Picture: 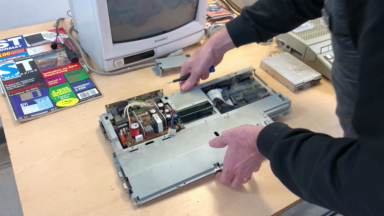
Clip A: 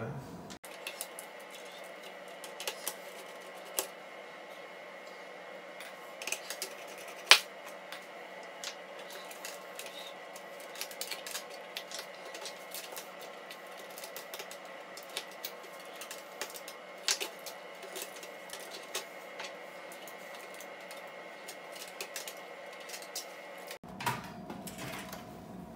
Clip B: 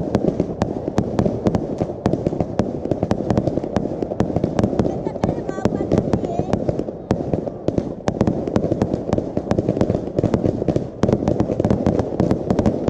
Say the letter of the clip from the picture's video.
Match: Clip A